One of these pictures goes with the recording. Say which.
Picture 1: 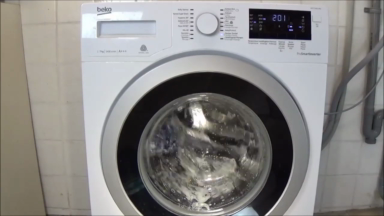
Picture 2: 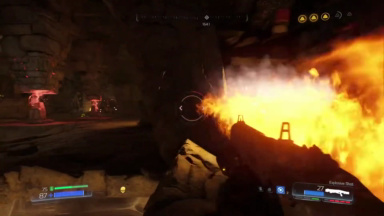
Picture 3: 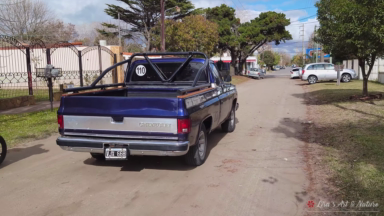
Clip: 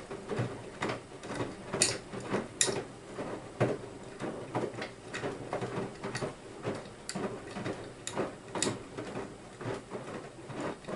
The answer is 1